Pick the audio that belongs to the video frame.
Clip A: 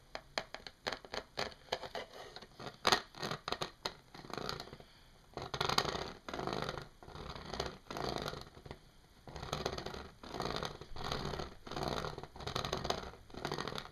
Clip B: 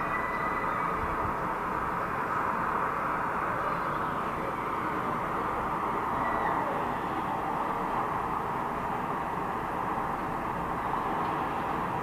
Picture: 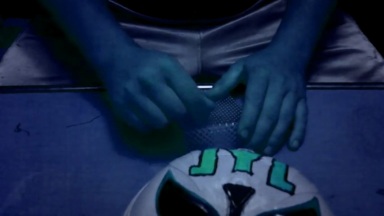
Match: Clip A